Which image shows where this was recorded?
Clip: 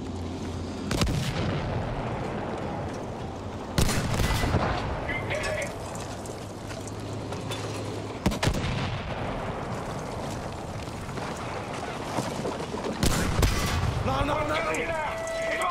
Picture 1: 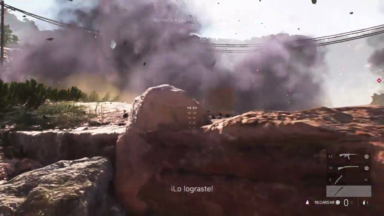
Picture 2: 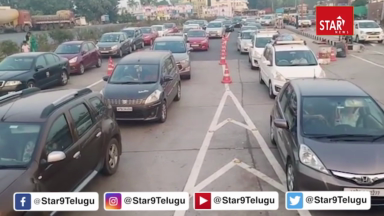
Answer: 1